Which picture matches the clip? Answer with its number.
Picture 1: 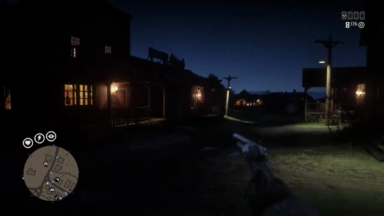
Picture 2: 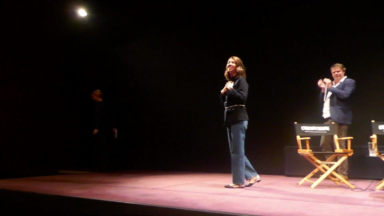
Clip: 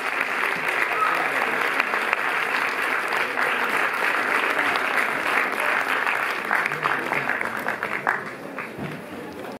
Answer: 2